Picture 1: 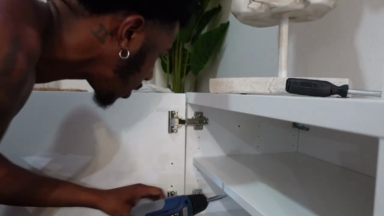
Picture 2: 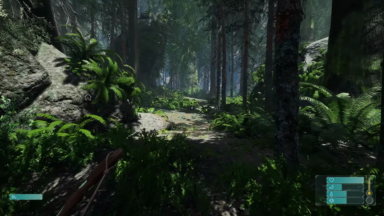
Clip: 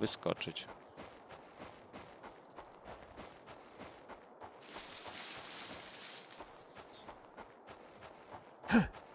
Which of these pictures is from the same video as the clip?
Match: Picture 2